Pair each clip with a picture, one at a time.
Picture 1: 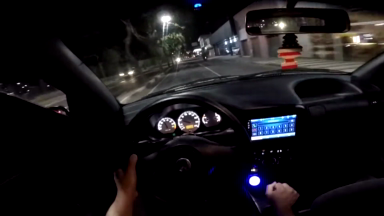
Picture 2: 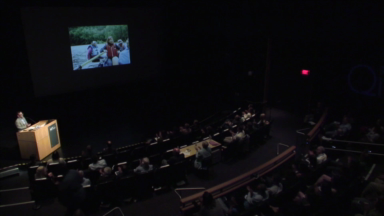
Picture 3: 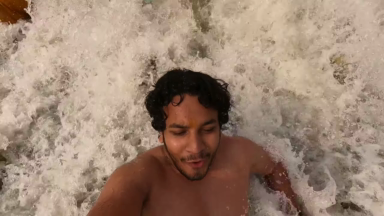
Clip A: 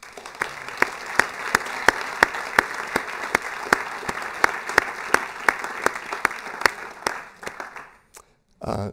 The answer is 2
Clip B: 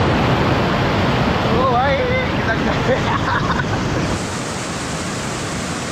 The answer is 3